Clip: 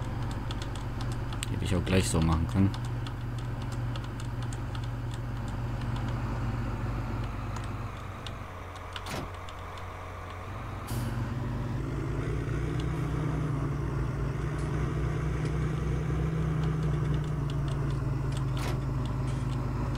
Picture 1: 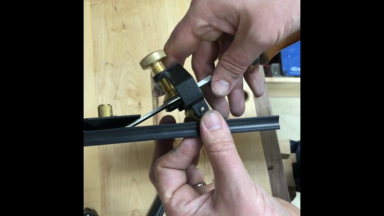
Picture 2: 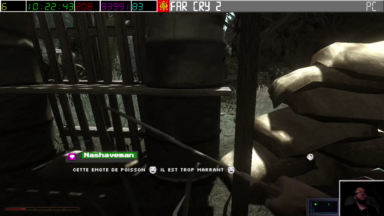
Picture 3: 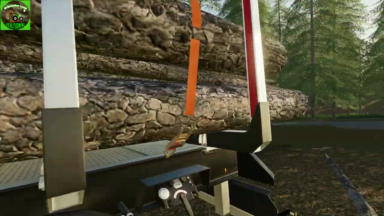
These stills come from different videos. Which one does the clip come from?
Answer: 3